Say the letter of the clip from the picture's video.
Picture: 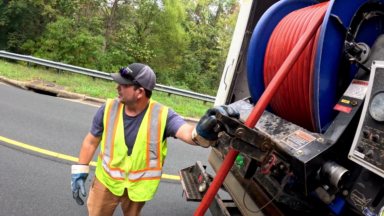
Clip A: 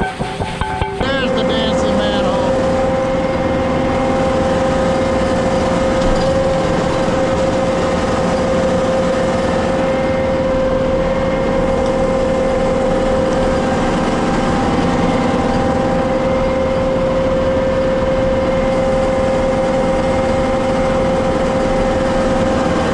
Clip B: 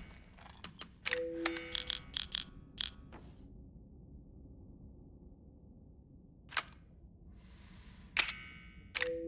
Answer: A